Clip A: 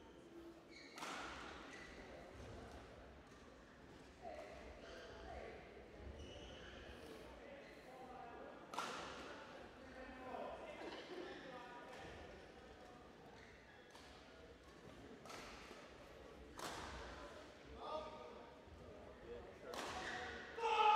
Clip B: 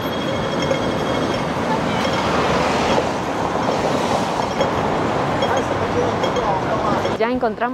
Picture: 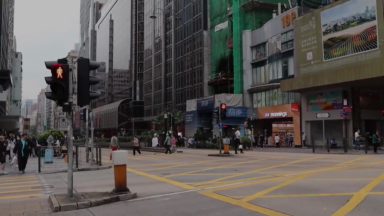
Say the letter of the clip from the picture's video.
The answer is B